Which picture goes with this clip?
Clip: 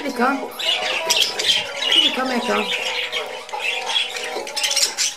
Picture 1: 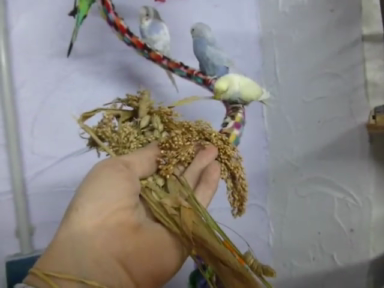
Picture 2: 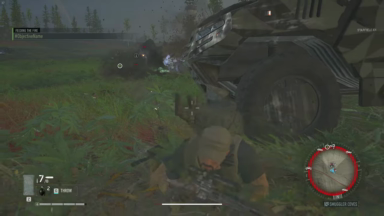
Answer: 1